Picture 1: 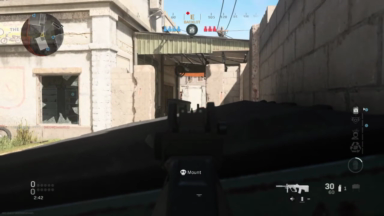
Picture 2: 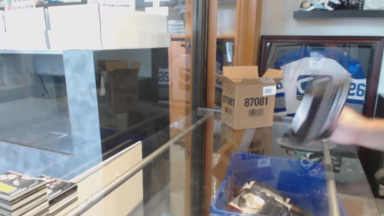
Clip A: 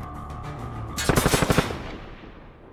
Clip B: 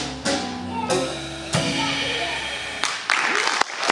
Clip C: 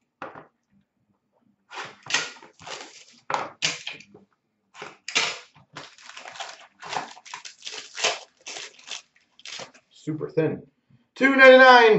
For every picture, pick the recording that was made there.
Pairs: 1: A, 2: C